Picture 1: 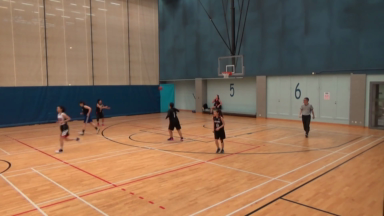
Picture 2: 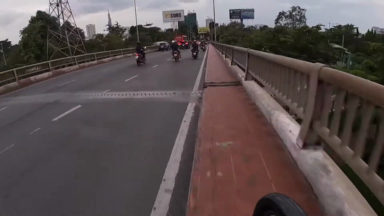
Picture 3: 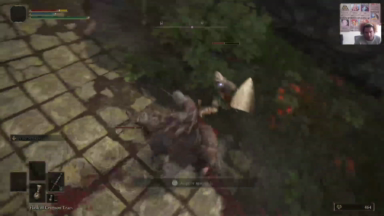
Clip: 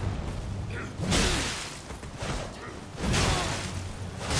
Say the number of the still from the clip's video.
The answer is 3